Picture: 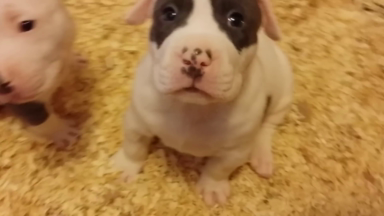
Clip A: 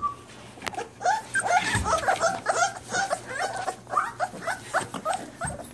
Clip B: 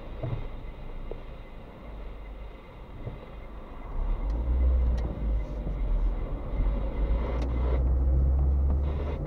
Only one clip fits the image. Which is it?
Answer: A